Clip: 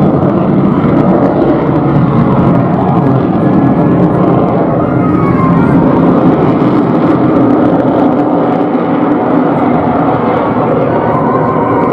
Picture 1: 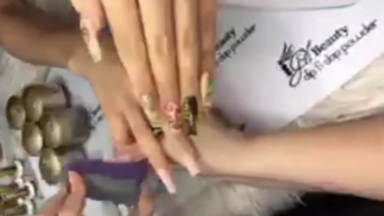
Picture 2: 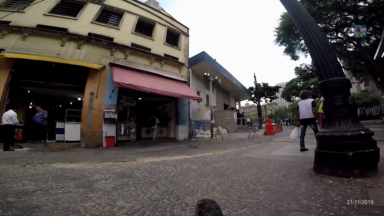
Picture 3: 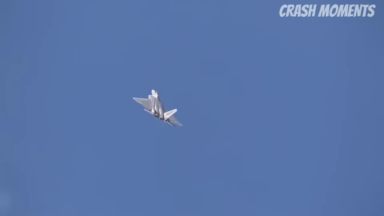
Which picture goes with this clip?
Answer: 3